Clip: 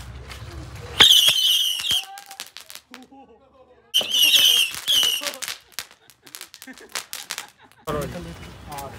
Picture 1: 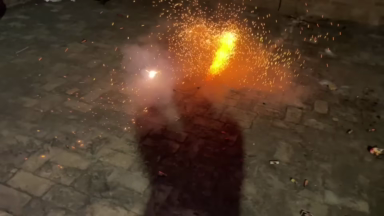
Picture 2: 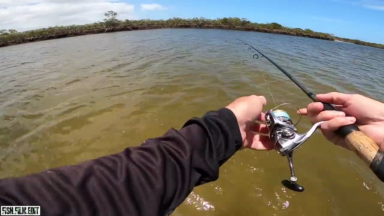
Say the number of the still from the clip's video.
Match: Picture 1